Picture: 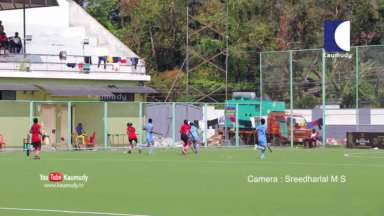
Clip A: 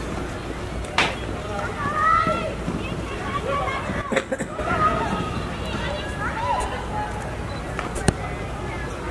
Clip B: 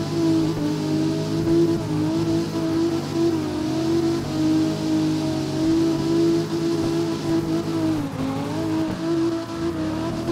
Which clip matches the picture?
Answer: A